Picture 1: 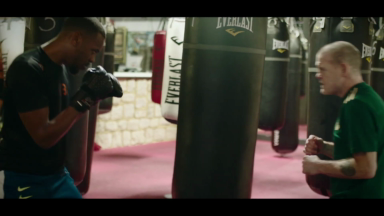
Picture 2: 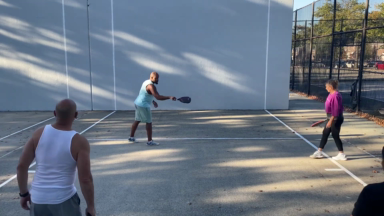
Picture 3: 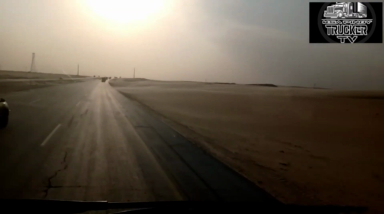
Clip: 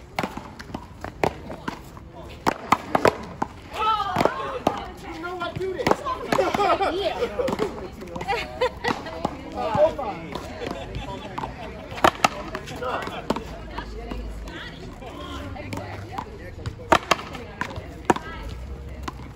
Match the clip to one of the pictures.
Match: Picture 2